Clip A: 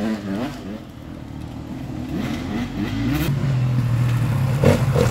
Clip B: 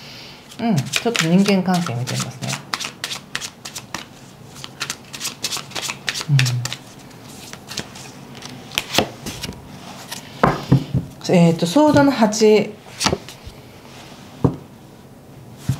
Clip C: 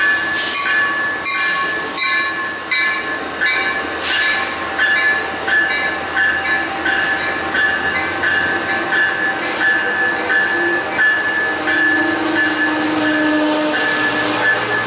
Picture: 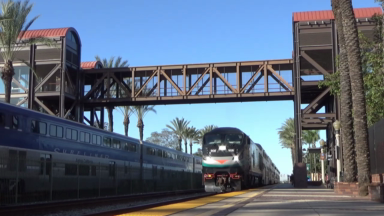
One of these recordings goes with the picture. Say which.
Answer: C